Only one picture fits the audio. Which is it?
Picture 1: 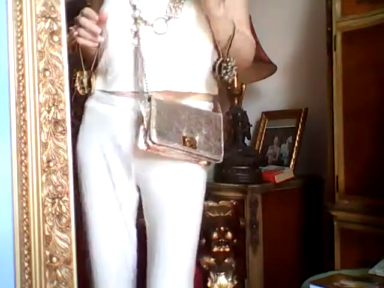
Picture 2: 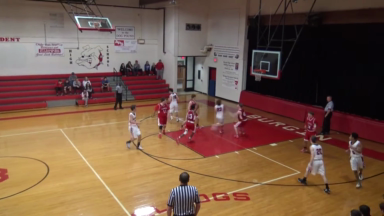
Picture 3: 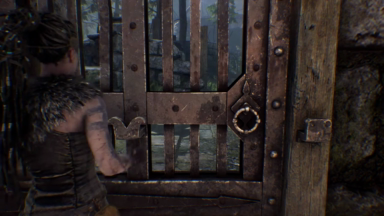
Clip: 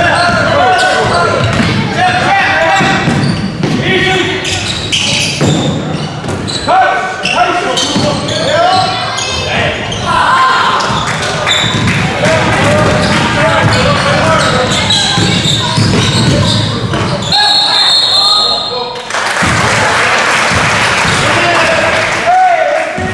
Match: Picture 2